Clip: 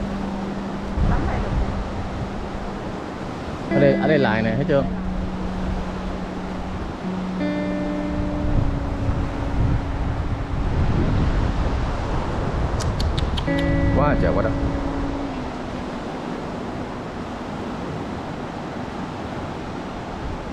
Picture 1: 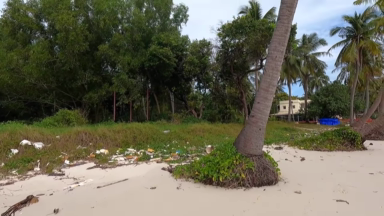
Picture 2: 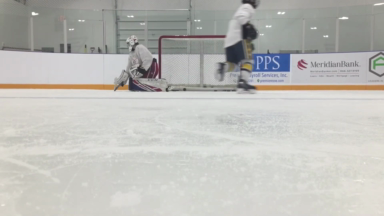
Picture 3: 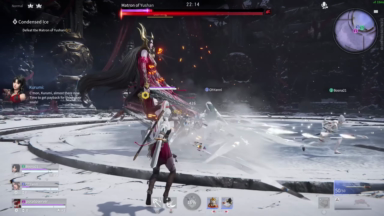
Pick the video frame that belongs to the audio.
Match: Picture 1